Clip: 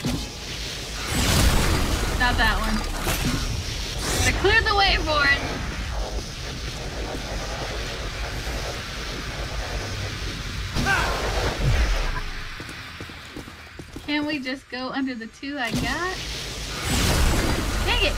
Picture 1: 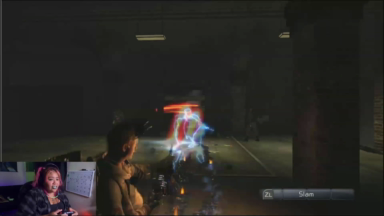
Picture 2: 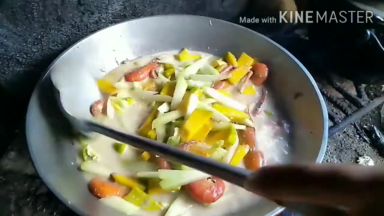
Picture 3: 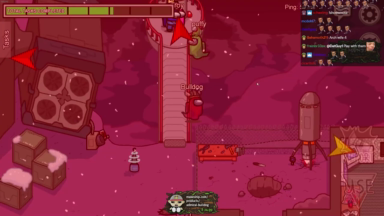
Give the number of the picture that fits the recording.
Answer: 1